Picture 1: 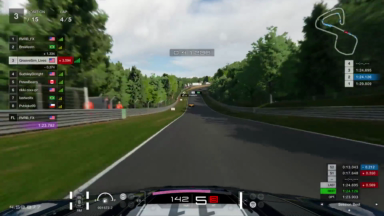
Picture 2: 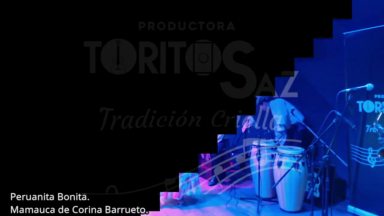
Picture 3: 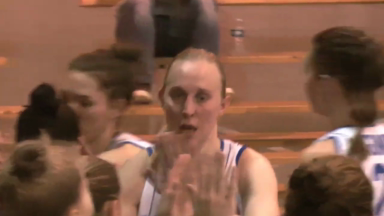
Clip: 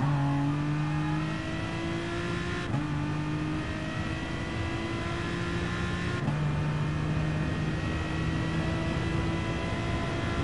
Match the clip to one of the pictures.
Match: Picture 1